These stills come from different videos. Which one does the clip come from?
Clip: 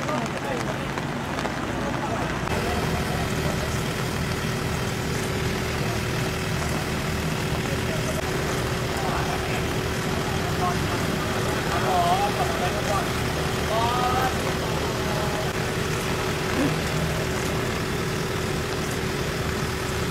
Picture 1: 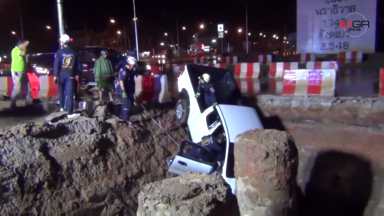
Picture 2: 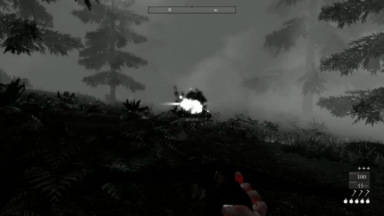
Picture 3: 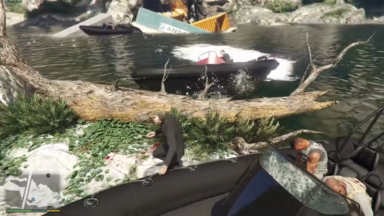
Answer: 1